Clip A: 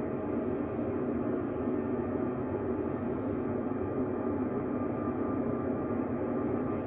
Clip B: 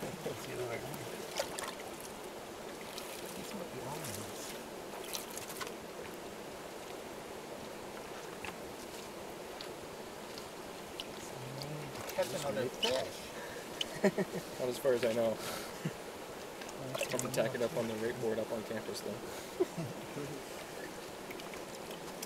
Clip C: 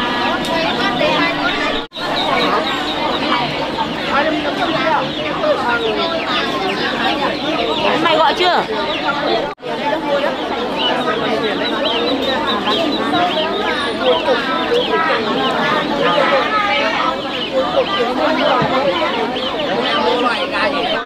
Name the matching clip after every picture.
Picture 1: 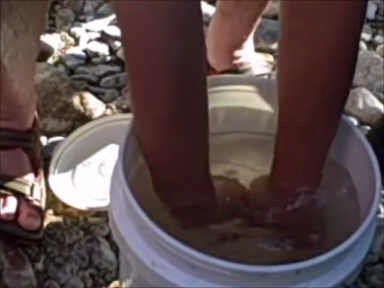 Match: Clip B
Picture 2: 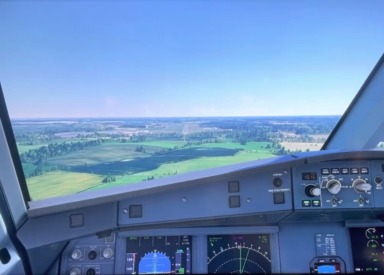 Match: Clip A